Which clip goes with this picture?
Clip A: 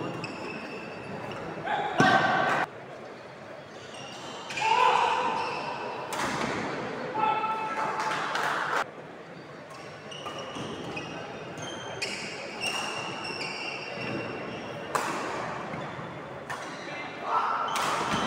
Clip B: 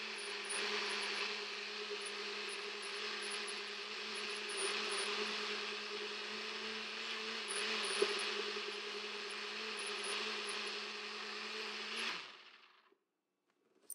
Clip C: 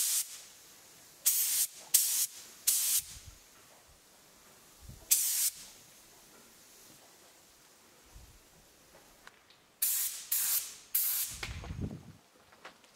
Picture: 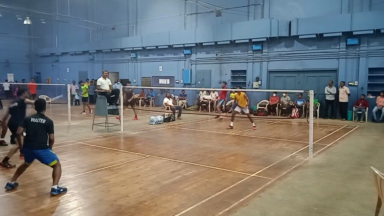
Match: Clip A